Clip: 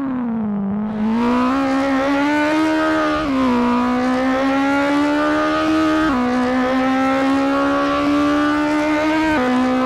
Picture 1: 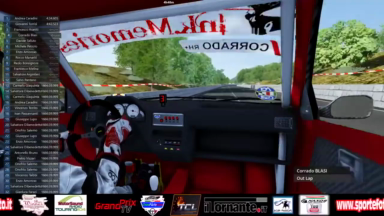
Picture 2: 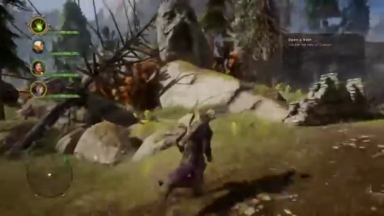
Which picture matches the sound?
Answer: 1